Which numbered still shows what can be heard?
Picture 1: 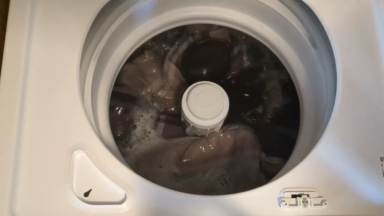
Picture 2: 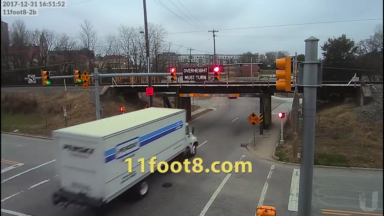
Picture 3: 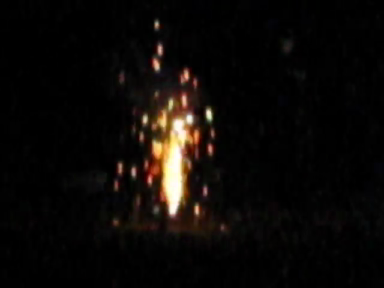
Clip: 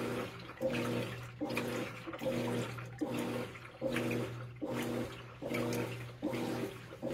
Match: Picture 1